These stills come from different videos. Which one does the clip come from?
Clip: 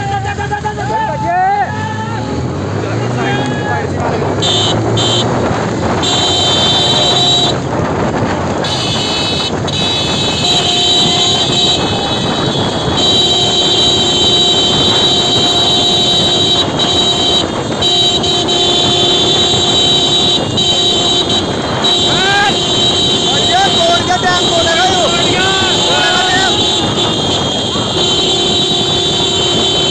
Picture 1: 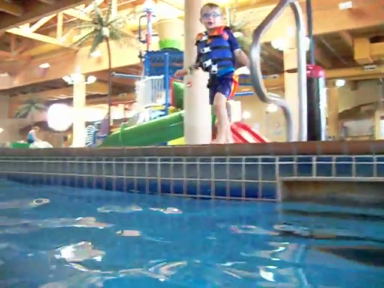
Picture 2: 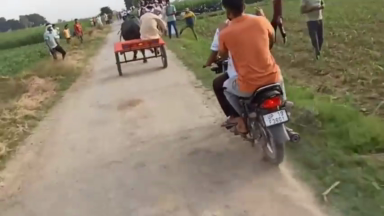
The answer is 2